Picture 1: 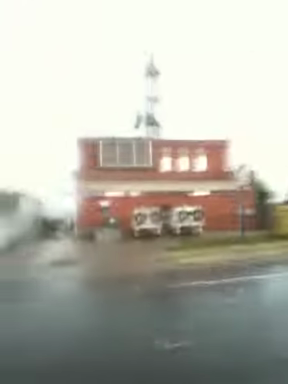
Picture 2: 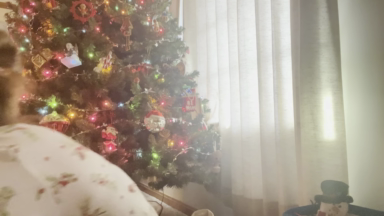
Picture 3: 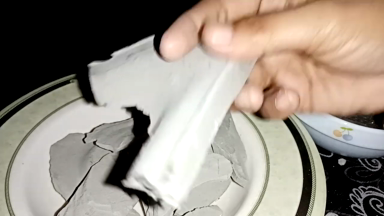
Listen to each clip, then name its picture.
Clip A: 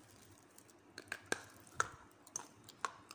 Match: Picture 3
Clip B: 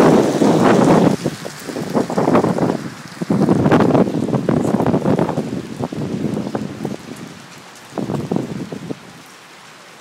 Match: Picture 1